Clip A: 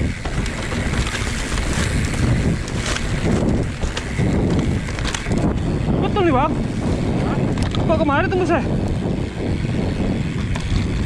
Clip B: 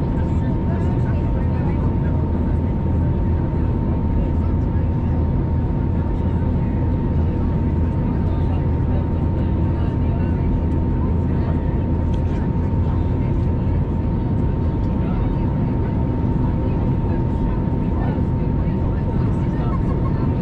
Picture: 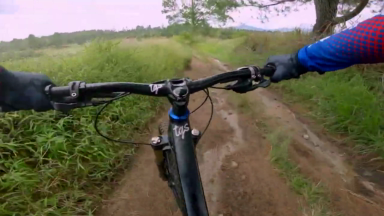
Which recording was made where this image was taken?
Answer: A